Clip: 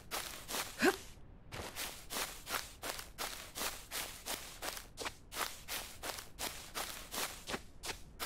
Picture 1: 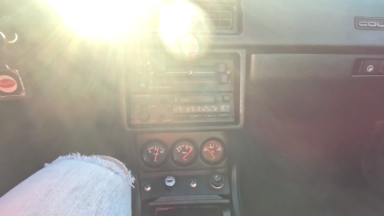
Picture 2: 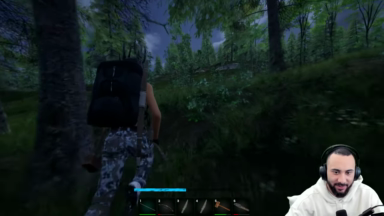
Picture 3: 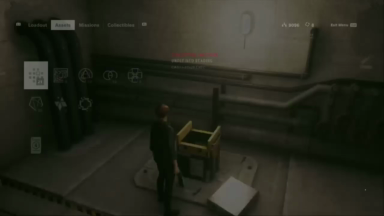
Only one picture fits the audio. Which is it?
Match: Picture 2